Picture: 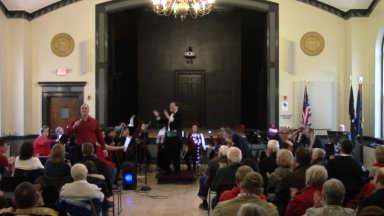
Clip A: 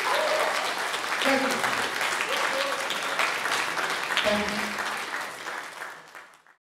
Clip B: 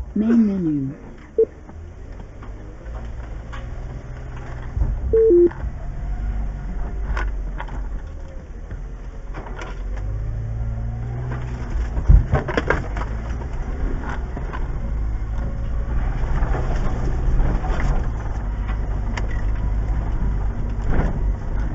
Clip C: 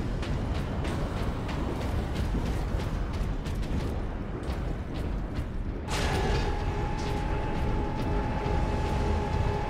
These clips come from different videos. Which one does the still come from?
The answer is A